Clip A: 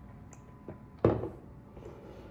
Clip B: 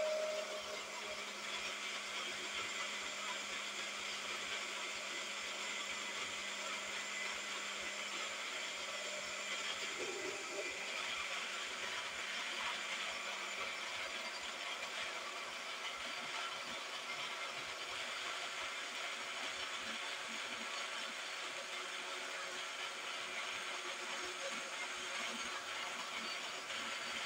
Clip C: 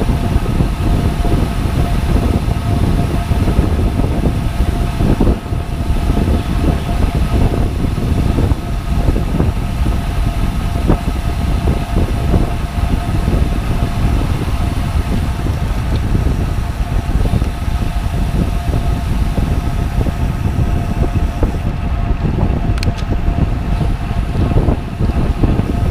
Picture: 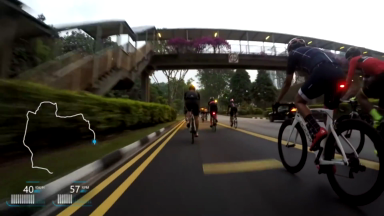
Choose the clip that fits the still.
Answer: C